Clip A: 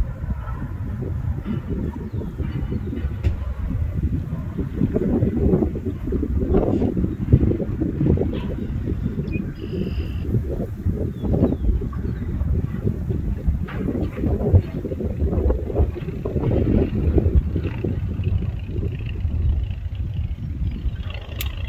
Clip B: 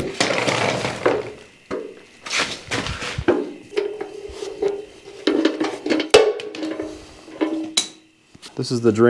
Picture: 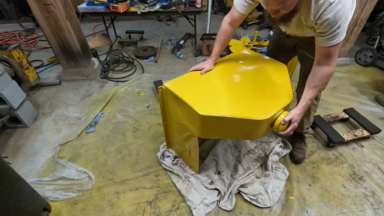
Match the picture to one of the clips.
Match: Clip B